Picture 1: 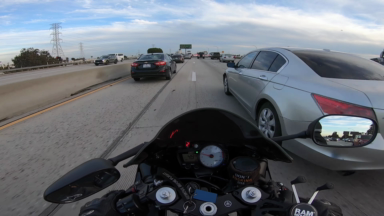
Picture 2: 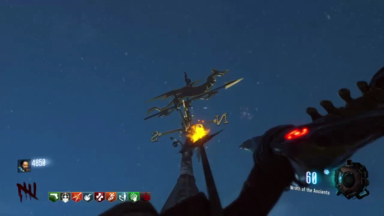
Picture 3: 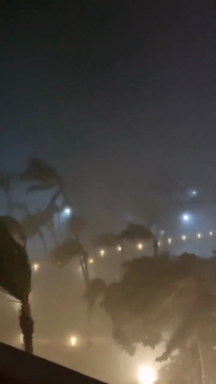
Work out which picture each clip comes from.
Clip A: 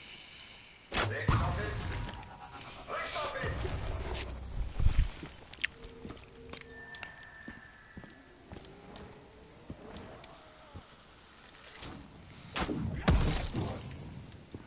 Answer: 2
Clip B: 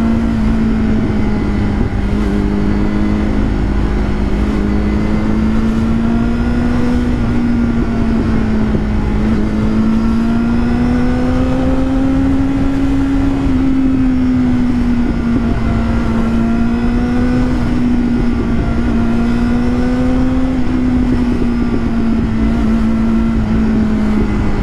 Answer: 1